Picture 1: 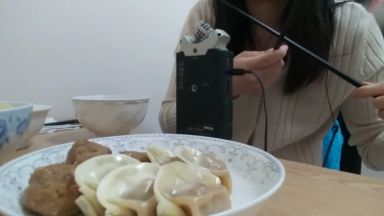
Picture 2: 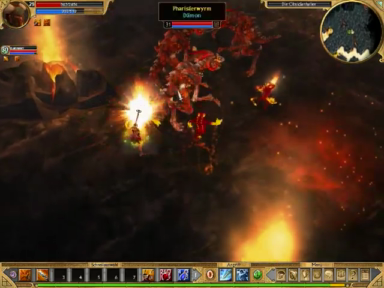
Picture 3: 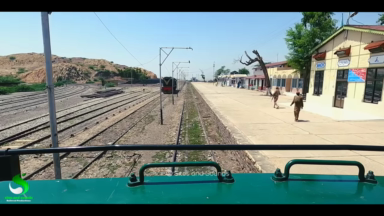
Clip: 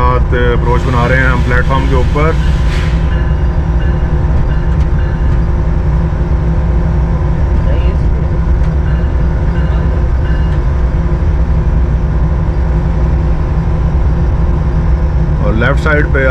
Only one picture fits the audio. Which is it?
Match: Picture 3